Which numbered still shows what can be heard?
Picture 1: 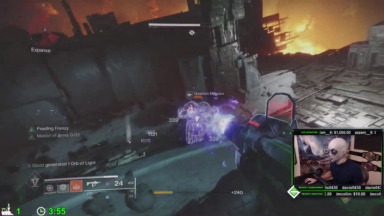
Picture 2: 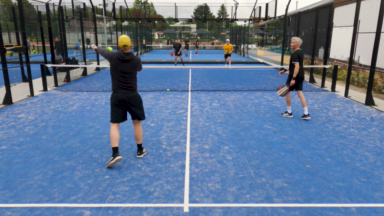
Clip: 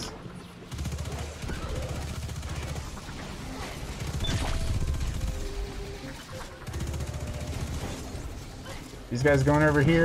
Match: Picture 1